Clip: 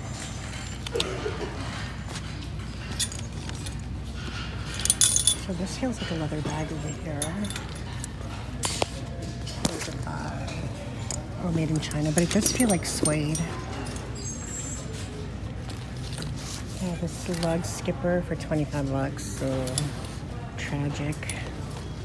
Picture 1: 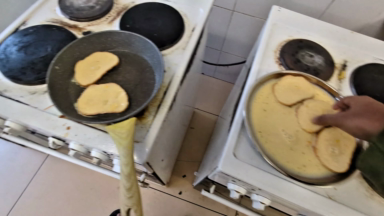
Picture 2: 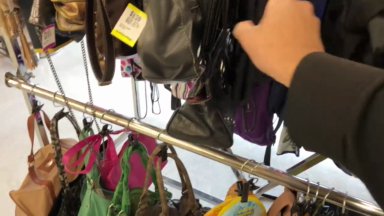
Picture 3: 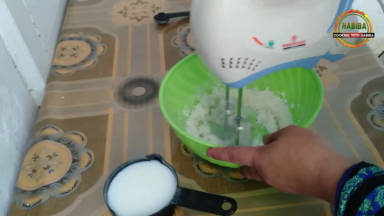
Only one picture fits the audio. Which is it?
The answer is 2